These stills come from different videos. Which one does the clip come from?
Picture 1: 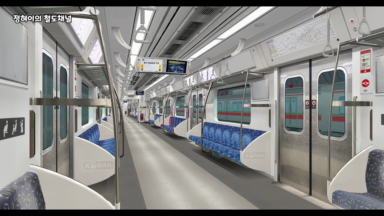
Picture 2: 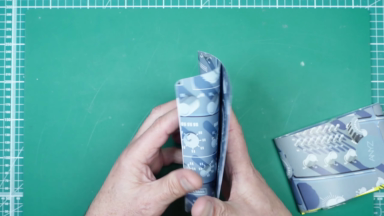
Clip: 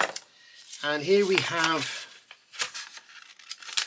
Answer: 2